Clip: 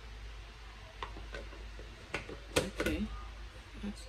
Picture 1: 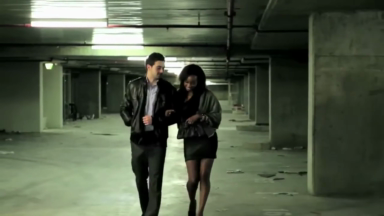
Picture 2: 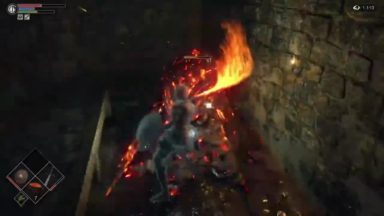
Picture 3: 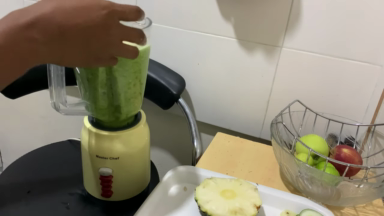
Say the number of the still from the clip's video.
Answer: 3